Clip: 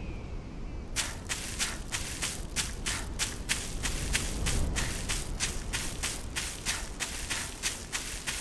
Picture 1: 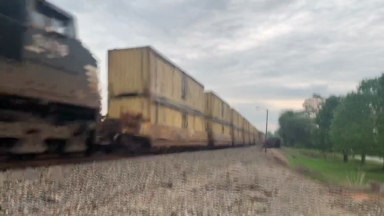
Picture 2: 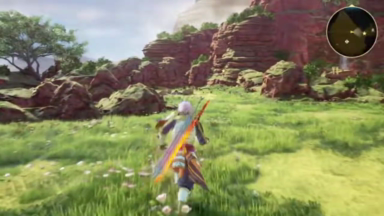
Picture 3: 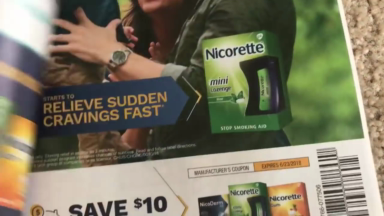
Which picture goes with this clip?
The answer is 2